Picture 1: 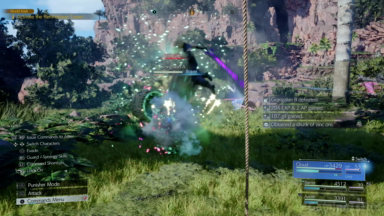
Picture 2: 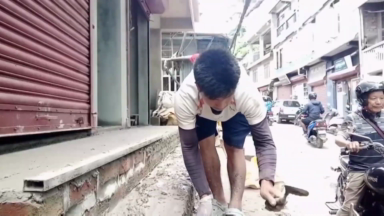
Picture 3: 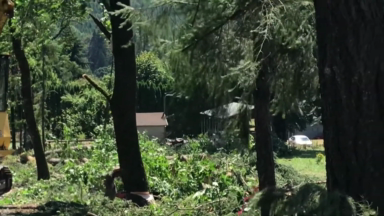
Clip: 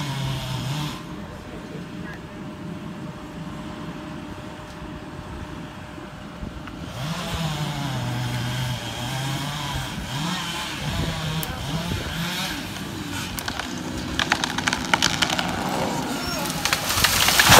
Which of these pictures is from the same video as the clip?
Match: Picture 3